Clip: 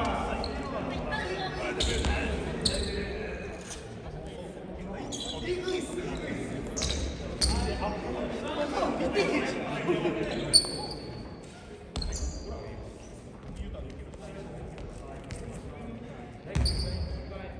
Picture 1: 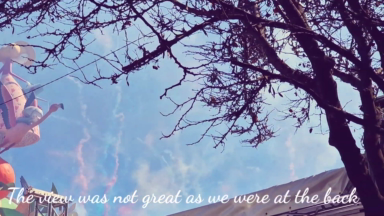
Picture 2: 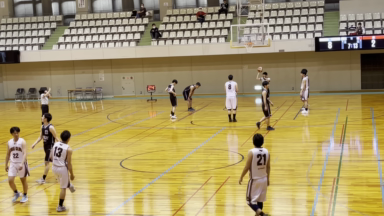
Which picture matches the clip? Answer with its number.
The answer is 2